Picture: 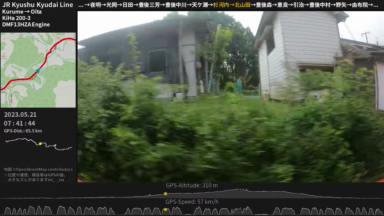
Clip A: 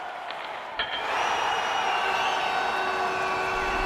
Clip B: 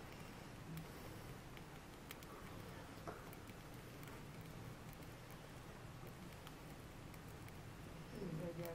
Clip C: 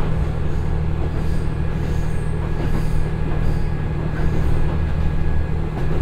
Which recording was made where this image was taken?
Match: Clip C